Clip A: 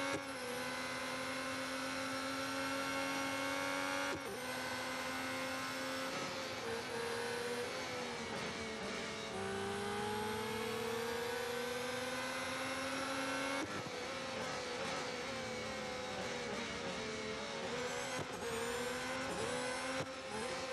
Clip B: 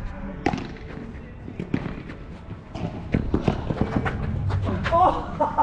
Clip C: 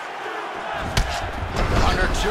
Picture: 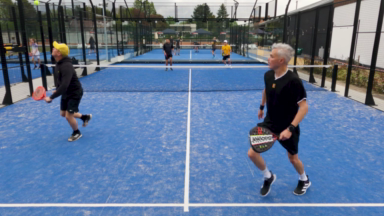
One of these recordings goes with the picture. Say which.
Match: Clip B